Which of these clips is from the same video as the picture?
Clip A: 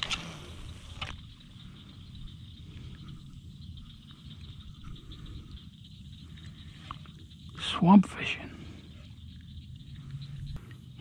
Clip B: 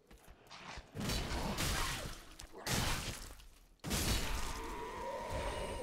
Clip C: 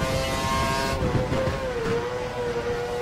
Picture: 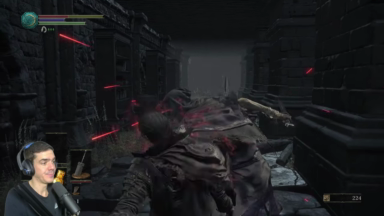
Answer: B